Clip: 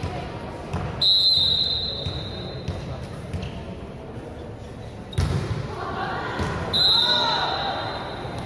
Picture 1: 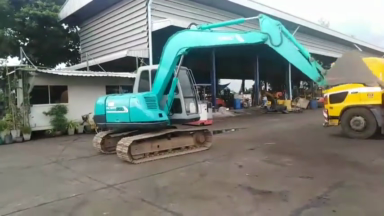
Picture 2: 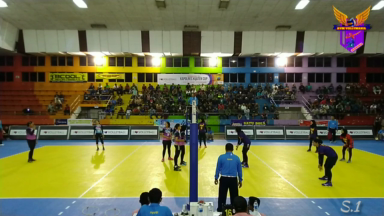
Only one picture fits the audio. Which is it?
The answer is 2